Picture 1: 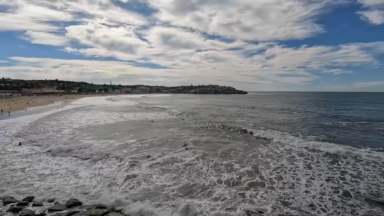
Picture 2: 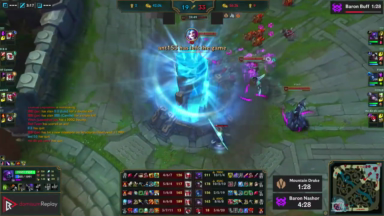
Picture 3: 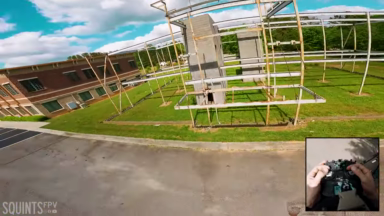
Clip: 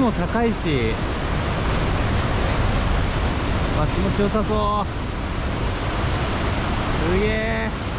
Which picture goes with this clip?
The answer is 1